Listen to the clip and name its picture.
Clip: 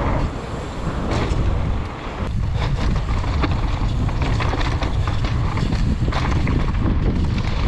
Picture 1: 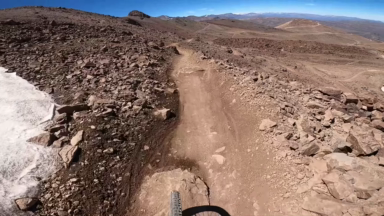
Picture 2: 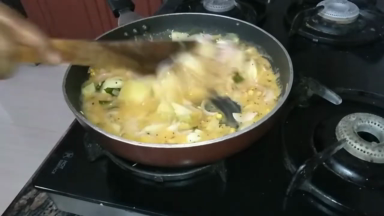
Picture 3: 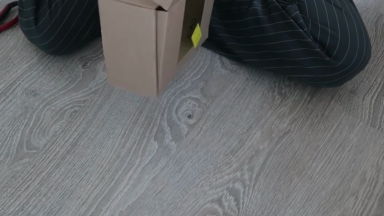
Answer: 1